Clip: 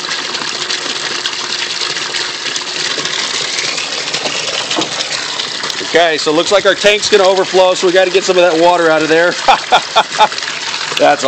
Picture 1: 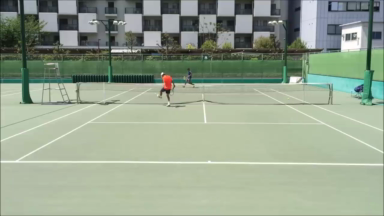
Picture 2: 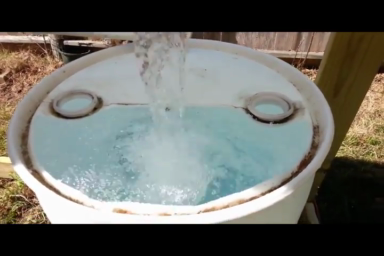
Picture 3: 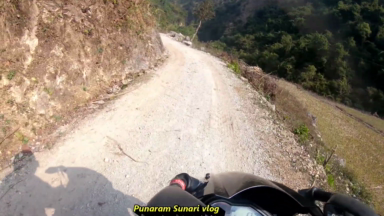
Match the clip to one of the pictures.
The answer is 2